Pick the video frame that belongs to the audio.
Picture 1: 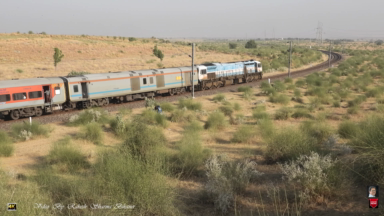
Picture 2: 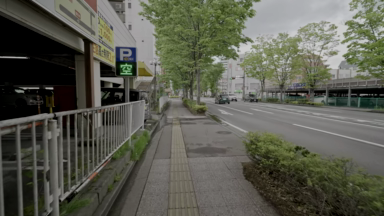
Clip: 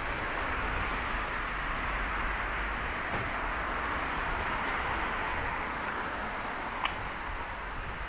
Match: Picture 2